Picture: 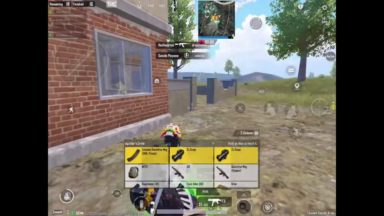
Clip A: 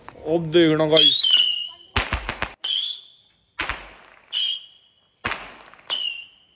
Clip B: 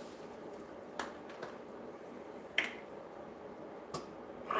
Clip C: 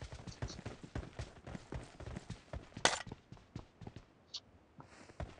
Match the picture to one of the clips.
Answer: C